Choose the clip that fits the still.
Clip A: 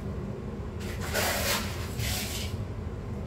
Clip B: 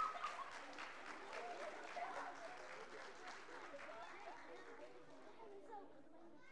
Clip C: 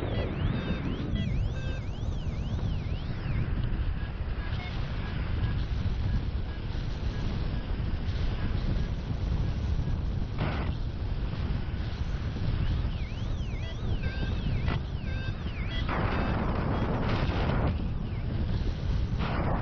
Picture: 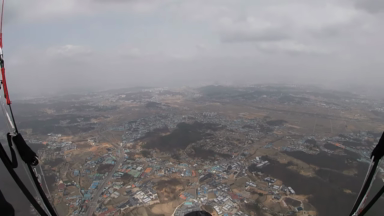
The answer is C